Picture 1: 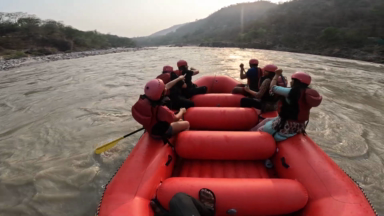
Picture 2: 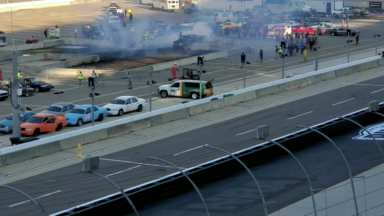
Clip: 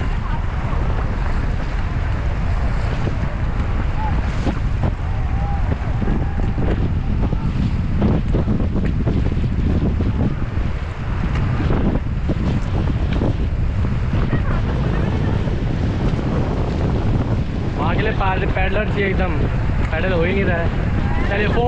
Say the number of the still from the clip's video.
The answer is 1